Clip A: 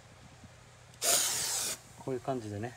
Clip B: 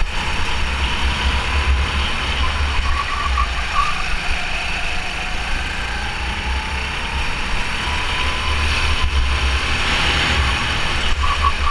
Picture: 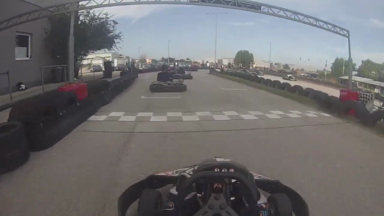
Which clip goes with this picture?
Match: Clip B